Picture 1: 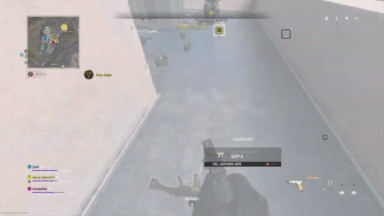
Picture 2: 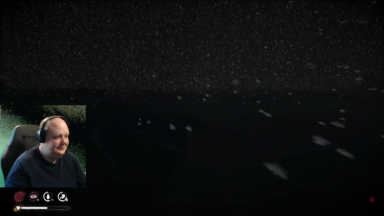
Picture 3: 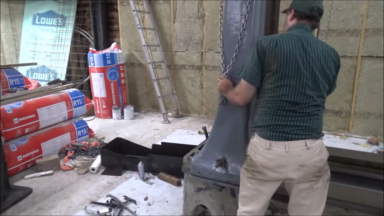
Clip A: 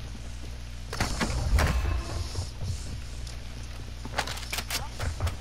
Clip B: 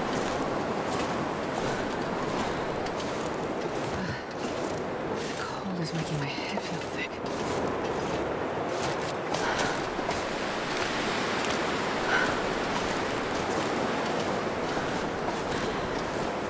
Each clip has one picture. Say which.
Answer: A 1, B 2